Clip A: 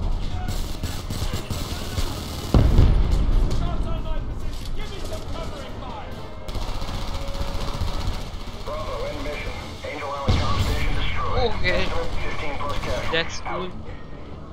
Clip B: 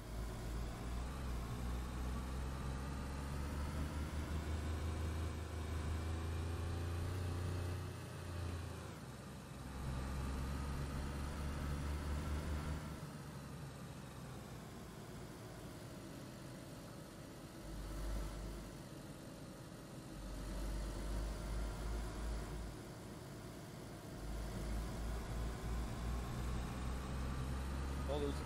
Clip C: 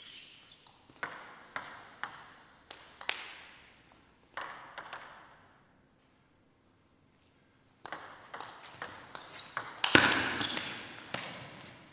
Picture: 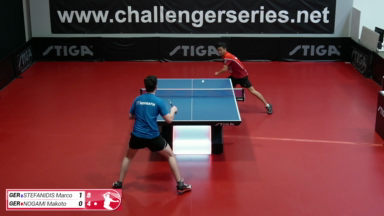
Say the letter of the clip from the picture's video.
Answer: C